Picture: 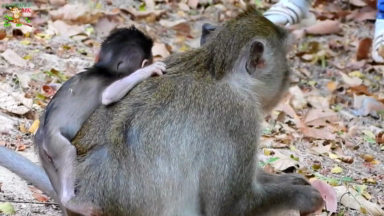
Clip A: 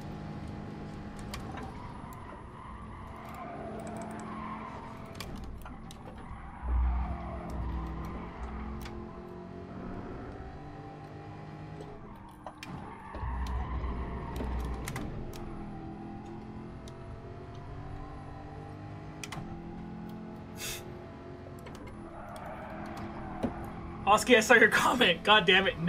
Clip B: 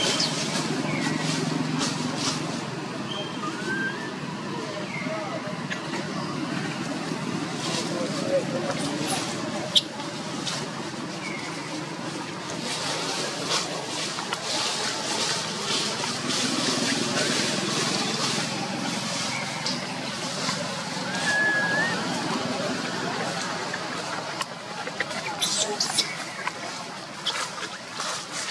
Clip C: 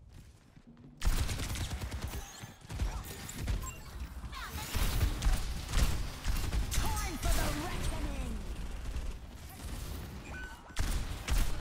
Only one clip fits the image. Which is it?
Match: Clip B